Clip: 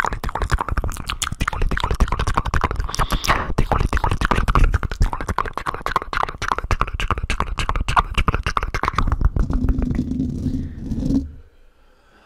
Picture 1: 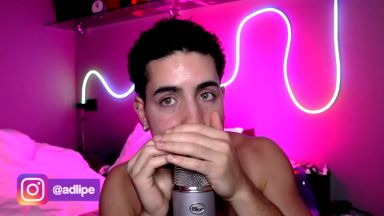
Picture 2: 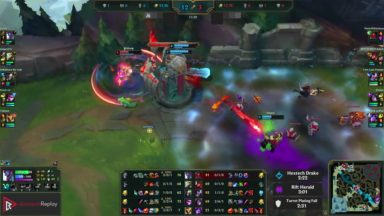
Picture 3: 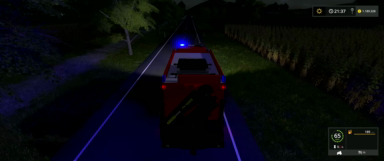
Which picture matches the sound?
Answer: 1